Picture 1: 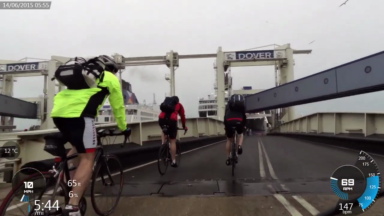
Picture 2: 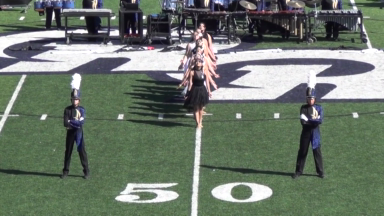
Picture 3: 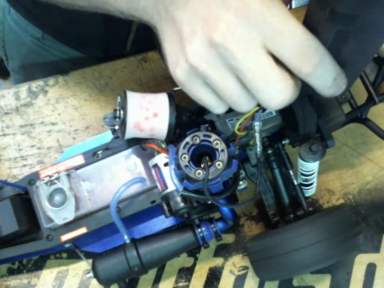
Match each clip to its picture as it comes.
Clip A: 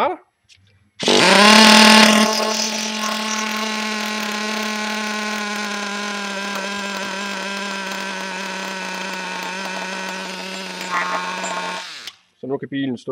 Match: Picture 3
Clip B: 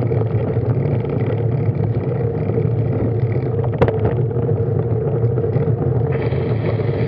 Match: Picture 1